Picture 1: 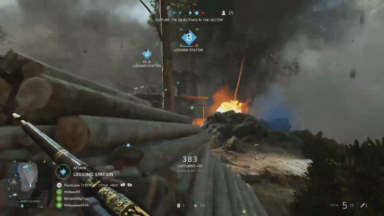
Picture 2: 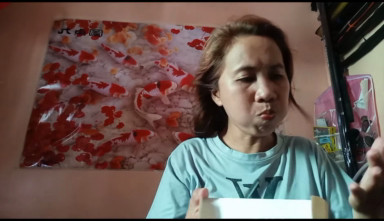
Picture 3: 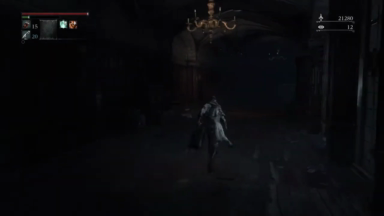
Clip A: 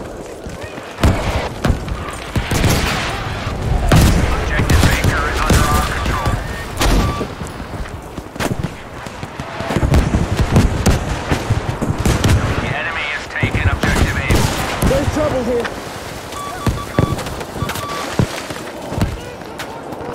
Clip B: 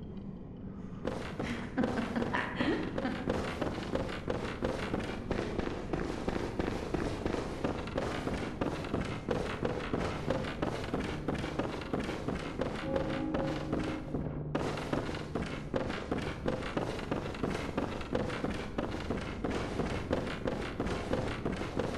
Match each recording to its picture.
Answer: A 1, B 3